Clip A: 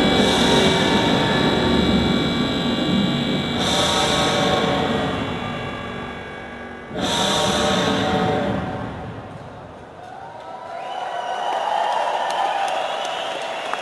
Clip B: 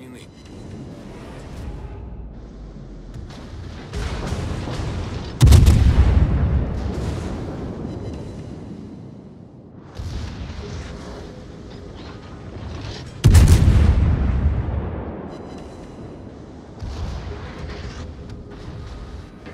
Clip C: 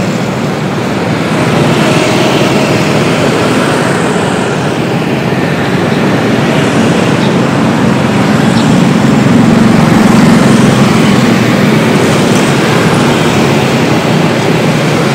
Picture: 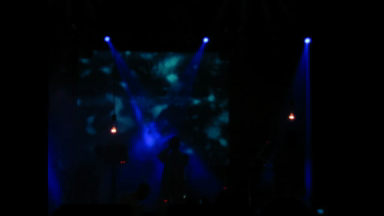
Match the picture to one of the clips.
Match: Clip A